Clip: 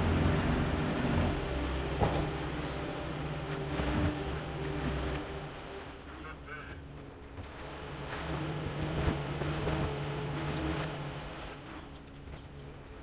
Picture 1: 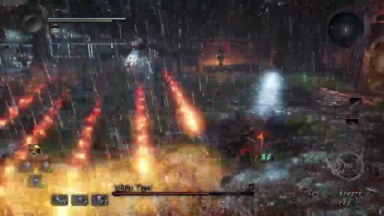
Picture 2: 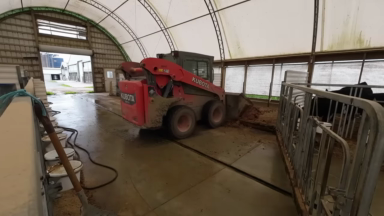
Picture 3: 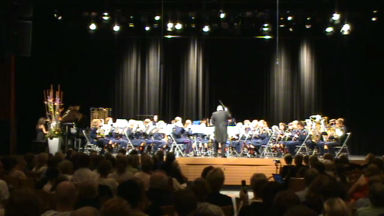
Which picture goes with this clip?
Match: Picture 2